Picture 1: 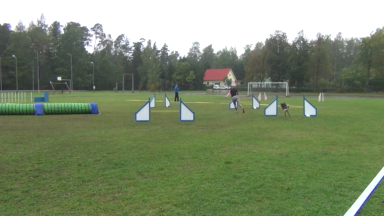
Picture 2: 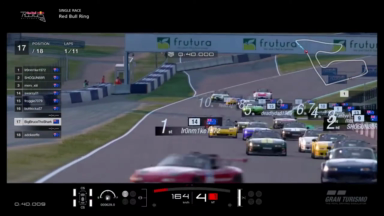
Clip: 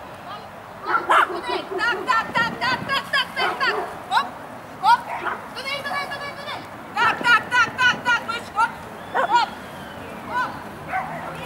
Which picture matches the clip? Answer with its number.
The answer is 1